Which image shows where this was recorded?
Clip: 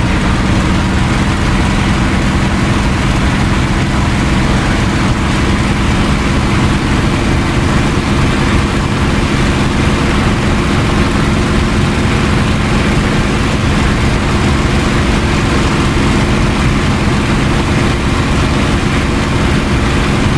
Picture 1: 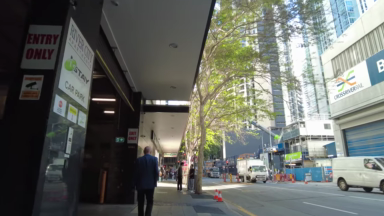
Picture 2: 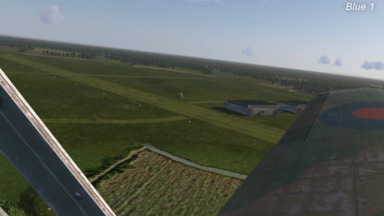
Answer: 2